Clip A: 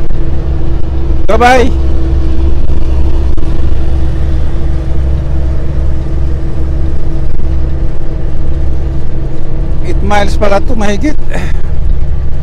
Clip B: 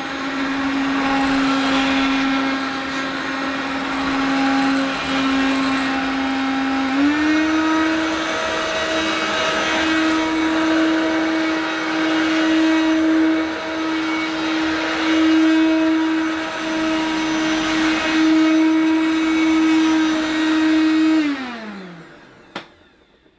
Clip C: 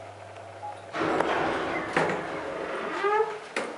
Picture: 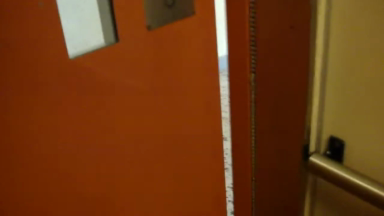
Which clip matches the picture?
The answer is C